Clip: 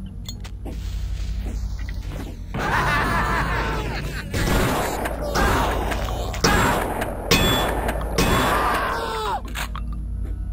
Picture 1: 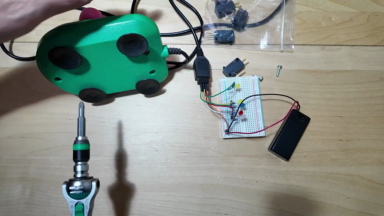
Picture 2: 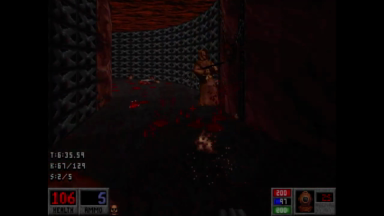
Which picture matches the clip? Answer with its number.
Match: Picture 2